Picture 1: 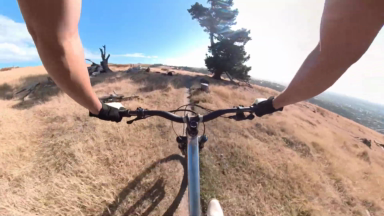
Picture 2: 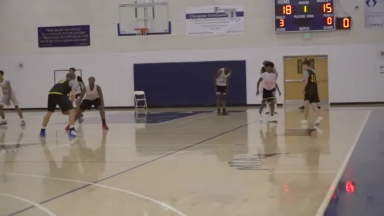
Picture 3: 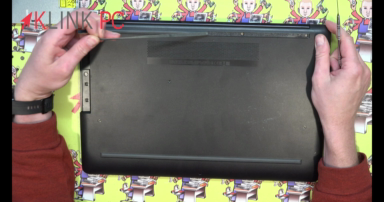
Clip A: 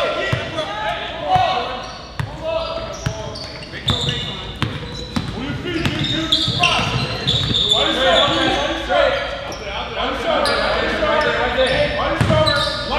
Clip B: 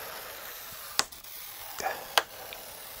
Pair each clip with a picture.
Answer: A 2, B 3